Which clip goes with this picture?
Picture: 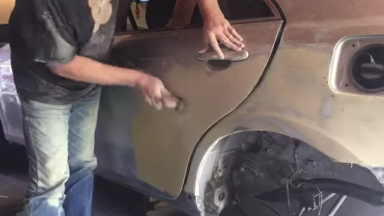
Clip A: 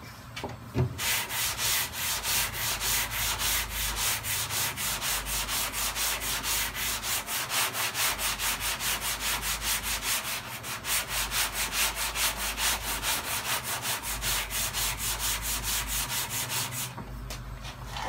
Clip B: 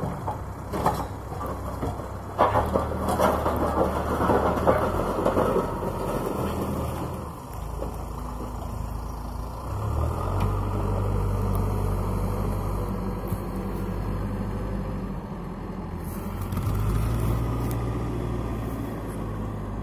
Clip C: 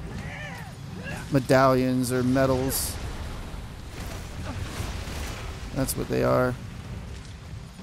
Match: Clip A